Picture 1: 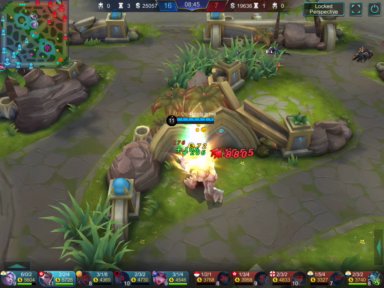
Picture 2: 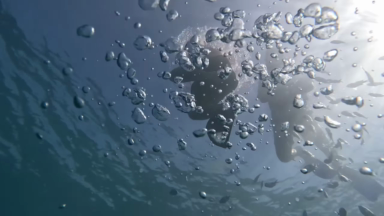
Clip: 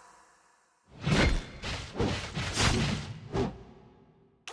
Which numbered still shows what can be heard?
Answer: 1